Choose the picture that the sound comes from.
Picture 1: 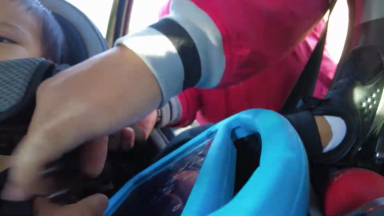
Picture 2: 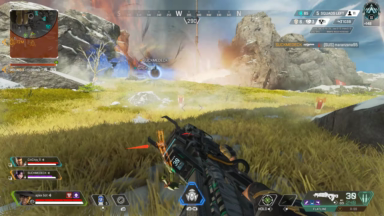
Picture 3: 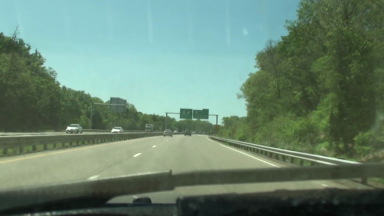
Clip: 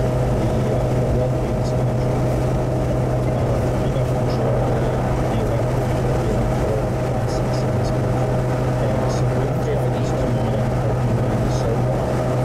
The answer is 3